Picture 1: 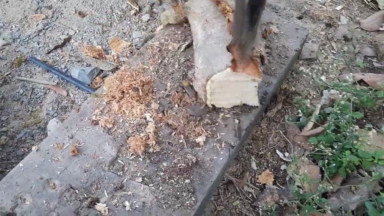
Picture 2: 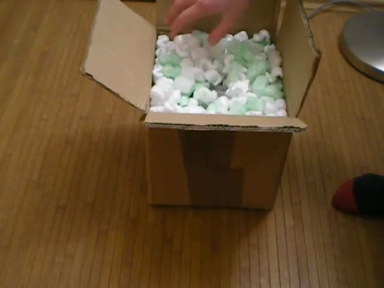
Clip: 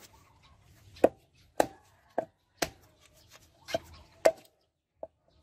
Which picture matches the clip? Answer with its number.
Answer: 1